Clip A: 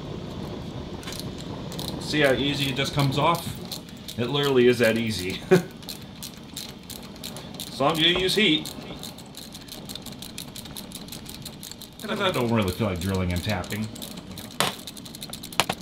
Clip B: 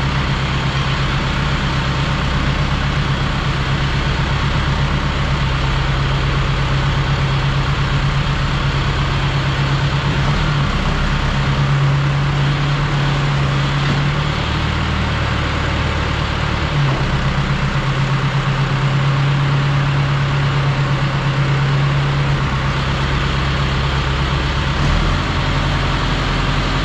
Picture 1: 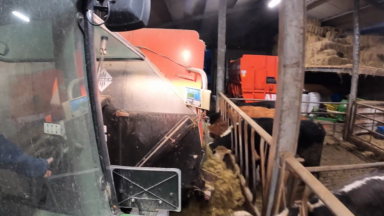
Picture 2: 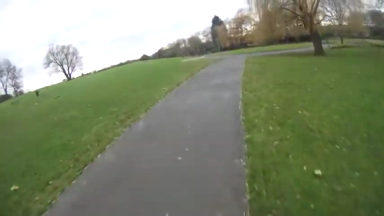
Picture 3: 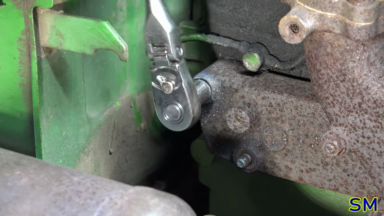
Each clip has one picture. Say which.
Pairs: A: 3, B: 1